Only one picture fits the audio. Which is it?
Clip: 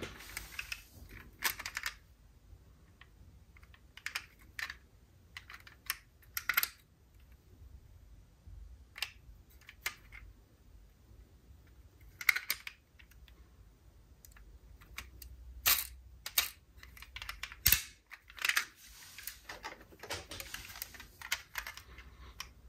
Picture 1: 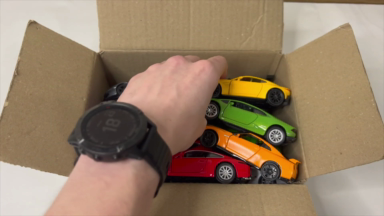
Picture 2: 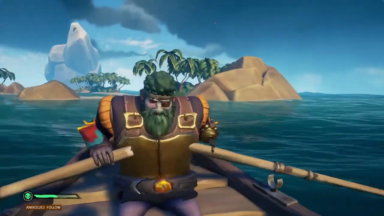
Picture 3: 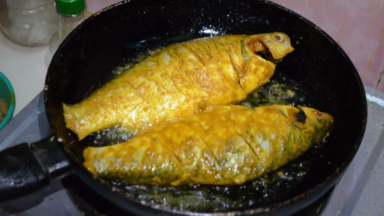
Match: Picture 1